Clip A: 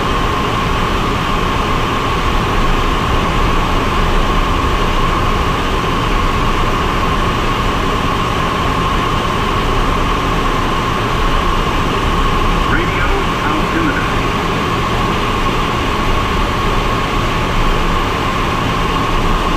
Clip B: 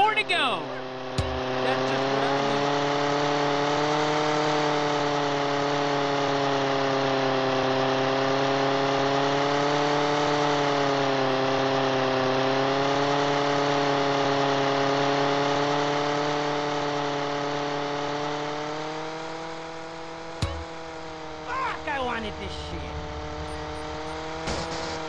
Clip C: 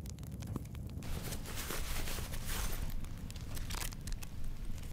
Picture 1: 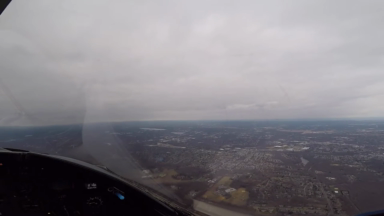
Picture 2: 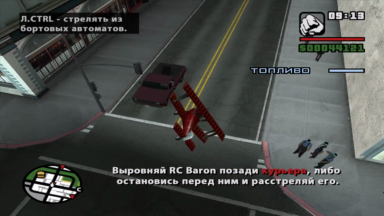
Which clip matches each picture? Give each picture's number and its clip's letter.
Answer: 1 A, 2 B